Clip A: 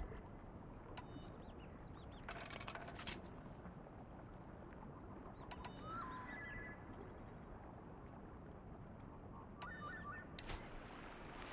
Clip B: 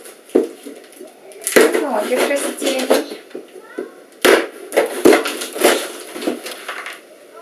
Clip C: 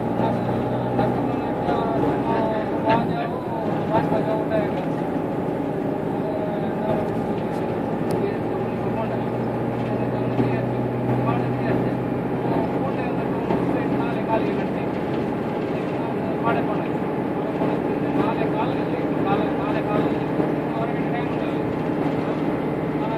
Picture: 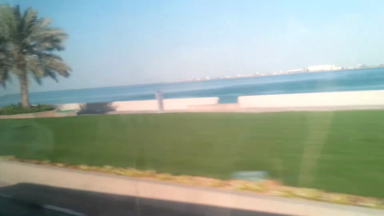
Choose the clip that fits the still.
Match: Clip C